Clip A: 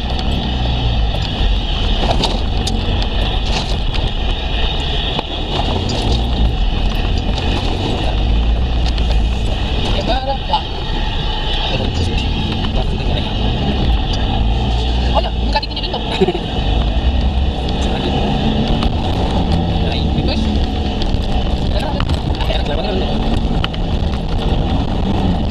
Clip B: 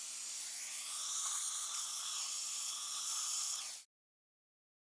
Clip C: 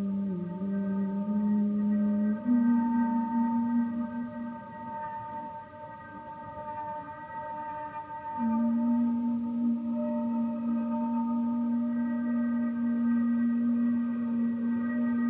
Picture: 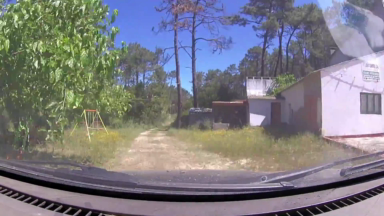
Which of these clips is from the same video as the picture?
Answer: A